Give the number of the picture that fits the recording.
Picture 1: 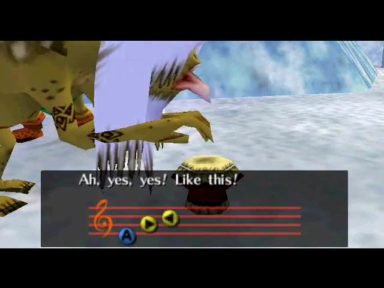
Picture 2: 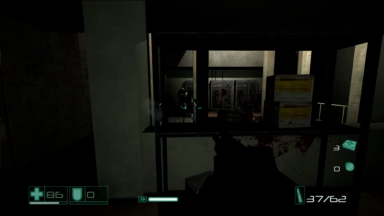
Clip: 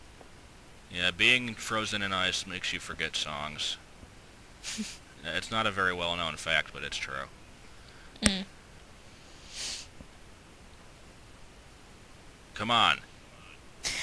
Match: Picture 1